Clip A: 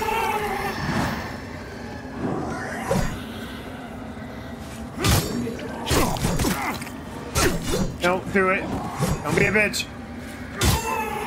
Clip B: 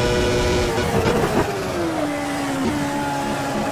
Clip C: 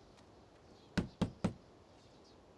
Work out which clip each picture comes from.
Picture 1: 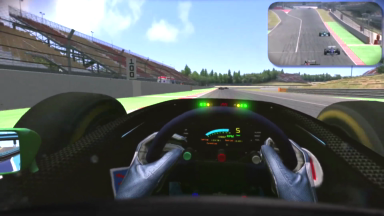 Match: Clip B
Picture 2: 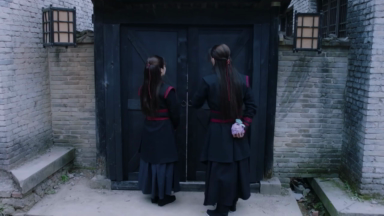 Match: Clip C